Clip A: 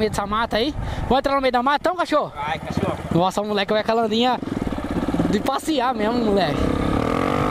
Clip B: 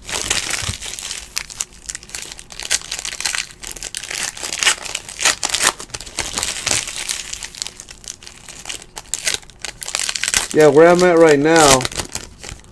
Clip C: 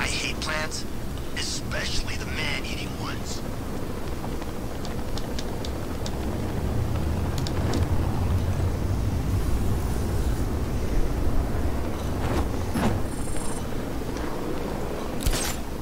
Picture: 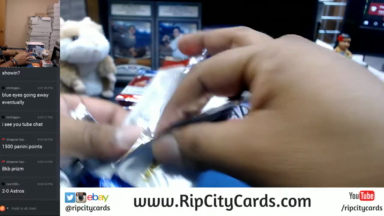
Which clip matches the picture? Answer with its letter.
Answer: B